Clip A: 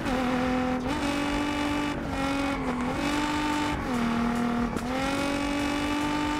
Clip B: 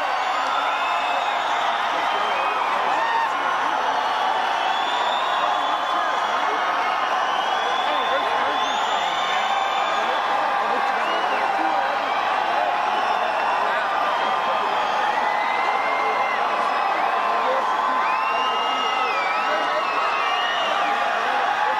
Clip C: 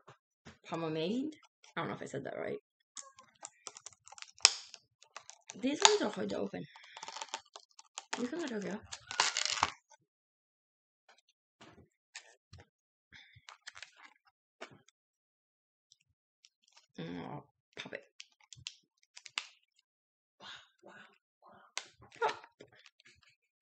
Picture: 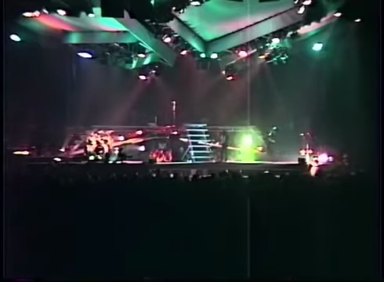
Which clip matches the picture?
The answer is B